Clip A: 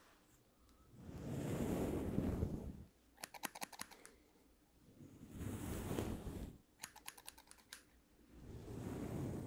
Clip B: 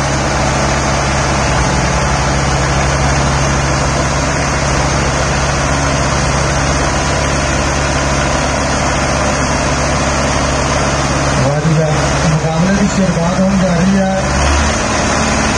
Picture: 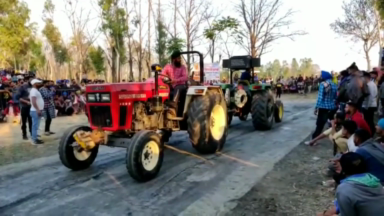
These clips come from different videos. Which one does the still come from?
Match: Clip B